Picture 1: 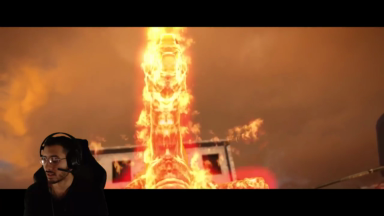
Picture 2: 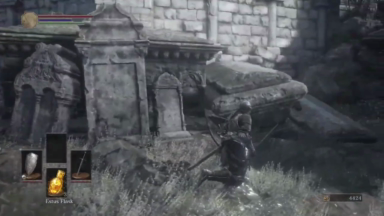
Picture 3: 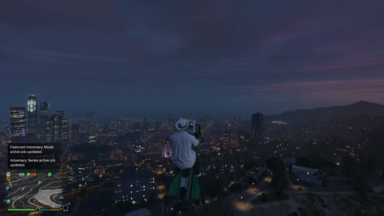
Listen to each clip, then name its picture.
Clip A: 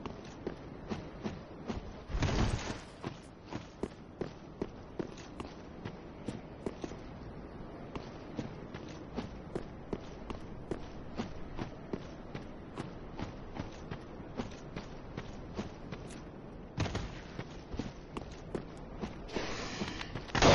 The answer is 2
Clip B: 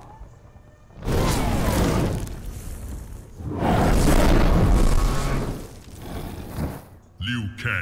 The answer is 1